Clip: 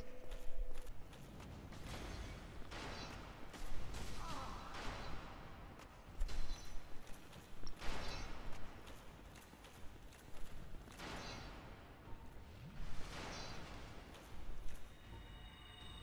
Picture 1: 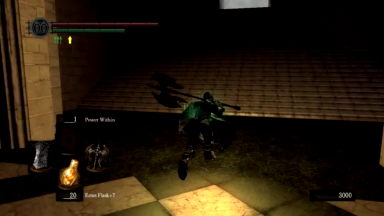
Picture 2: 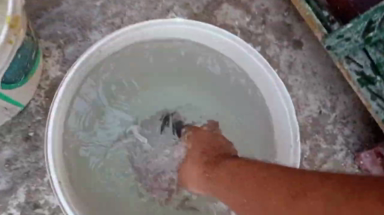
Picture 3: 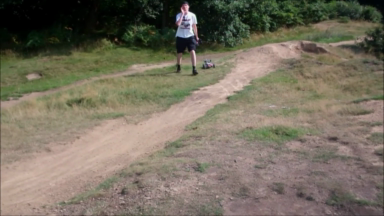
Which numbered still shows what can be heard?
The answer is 1